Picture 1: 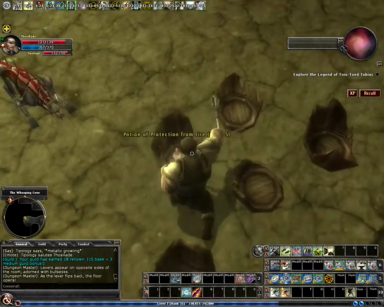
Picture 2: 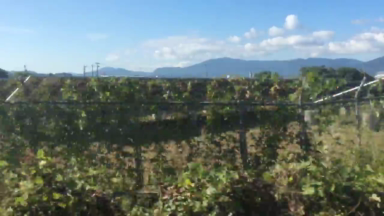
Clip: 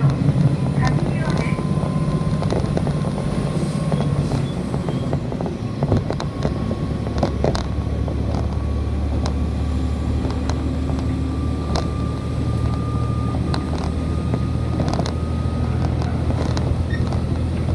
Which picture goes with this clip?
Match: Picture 2